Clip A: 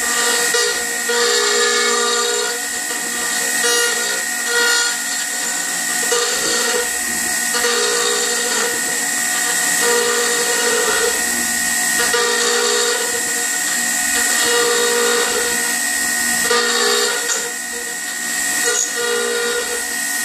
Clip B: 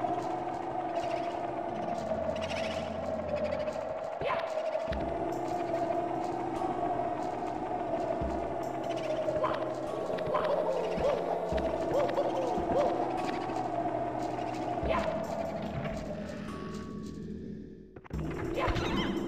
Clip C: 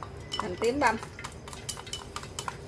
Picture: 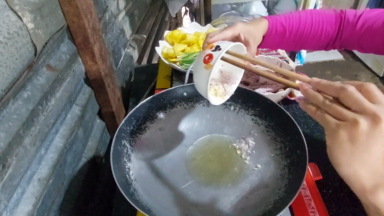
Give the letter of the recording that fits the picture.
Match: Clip C